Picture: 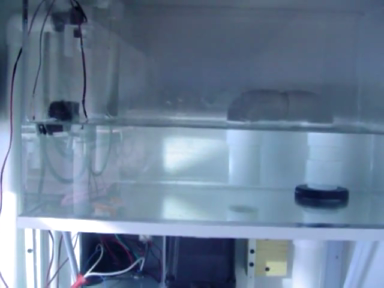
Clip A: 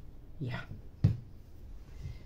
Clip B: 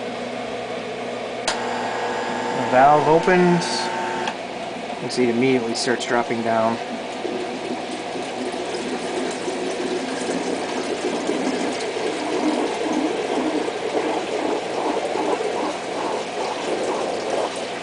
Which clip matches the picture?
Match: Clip B